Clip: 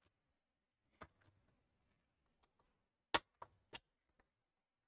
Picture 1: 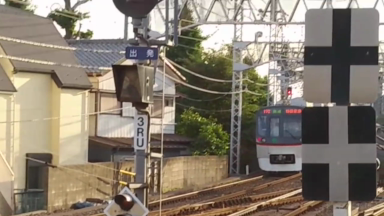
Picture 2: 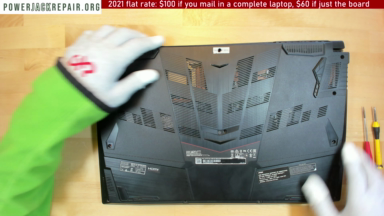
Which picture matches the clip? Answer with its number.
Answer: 2